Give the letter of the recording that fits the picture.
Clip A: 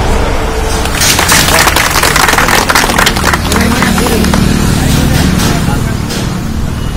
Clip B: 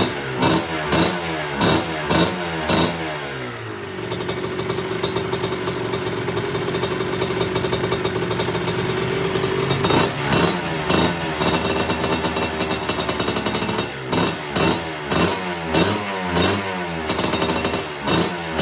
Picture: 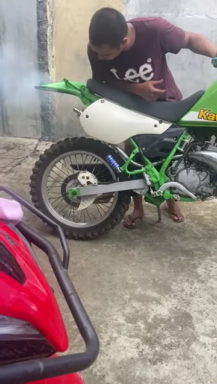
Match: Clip B